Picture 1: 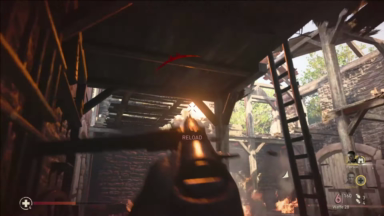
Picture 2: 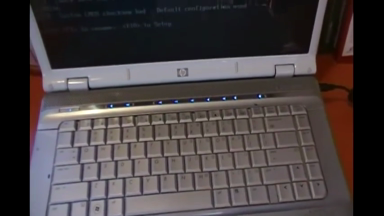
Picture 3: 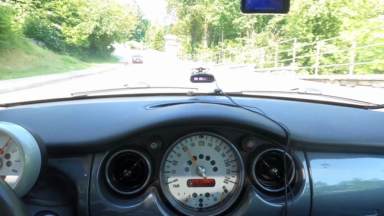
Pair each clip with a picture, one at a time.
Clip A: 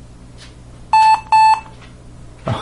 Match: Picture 2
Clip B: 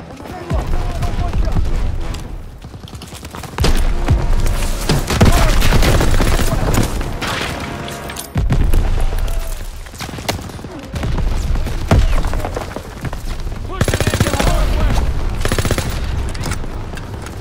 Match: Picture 1